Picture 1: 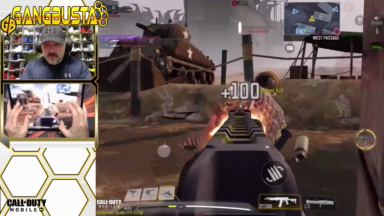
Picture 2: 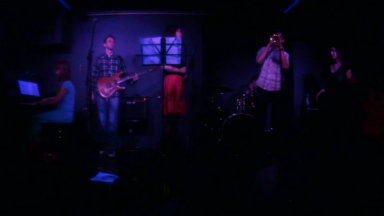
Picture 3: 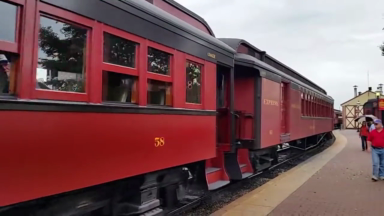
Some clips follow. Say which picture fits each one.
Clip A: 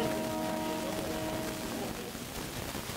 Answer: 2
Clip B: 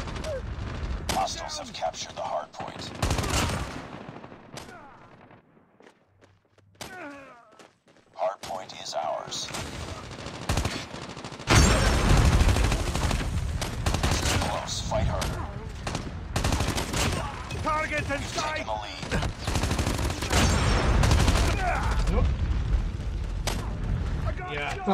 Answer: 1